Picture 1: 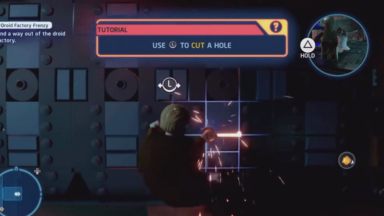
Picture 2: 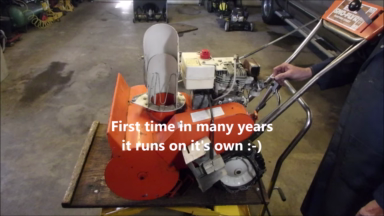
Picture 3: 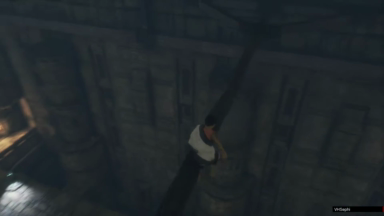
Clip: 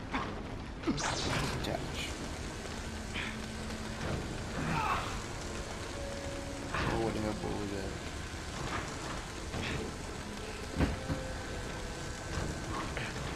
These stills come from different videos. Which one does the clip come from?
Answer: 1